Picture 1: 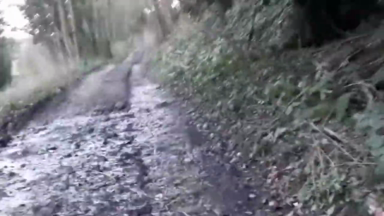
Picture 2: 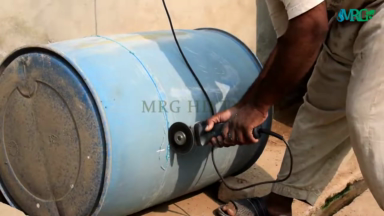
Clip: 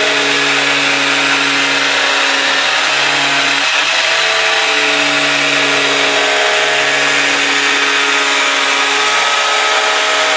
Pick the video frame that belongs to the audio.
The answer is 2